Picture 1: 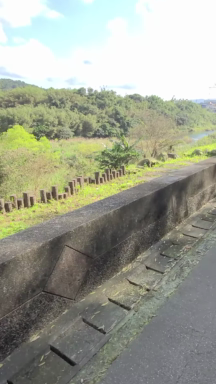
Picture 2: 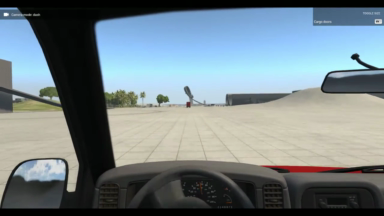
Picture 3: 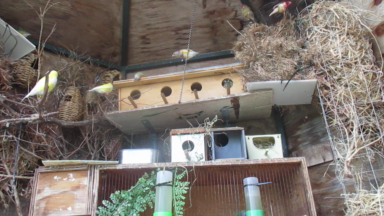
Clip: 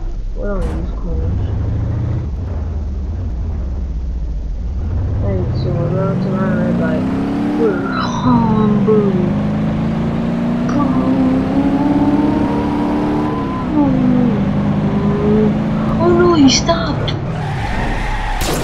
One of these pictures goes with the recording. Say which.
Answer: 2